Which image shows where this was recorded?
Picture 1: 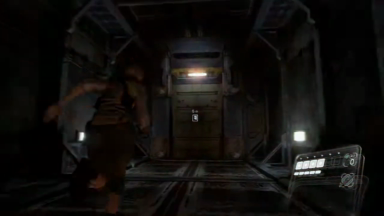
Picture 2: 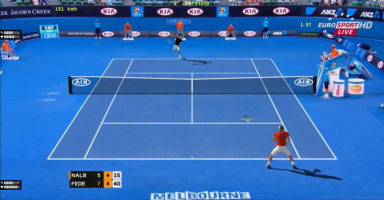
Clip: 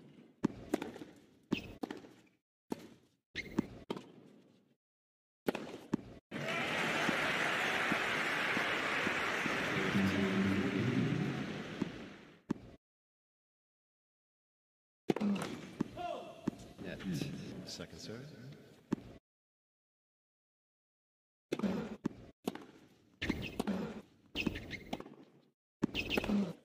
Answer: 2